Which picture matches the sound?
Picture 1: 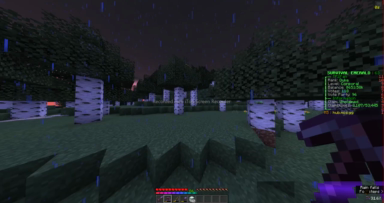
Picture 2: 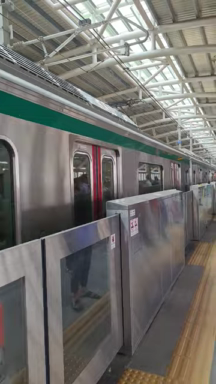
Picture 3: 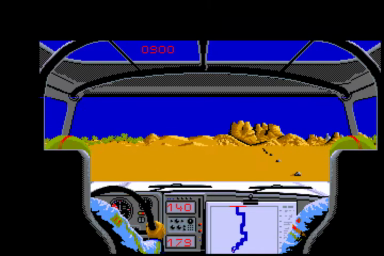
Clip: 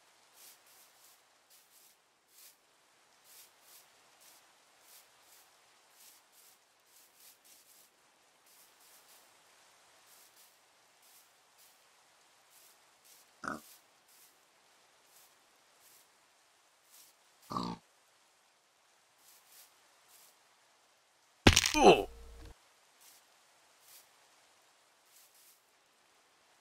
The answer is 1